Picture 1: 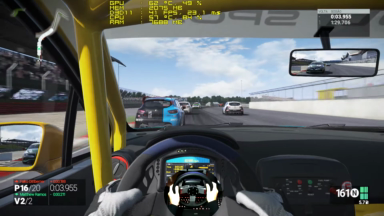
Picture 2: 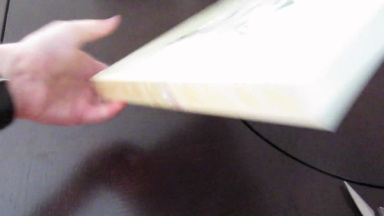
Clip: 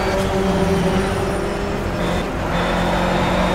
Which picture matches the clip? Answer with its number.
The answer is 1